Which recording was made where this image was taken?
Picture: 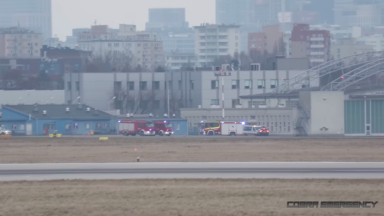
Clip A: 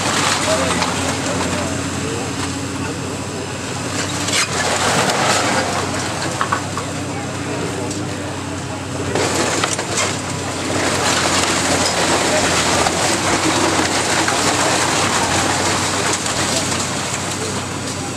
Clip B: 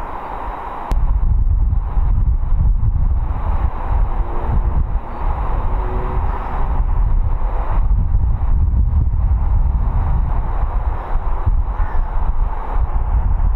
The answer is B